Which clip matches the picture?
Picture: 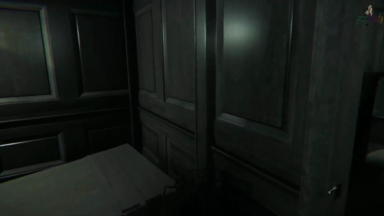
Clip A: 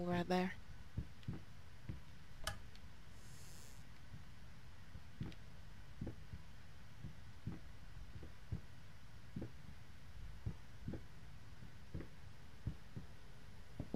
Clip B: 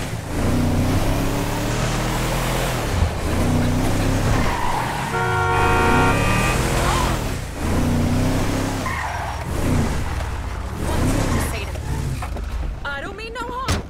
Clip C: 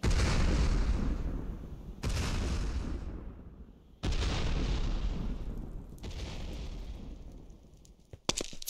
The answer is A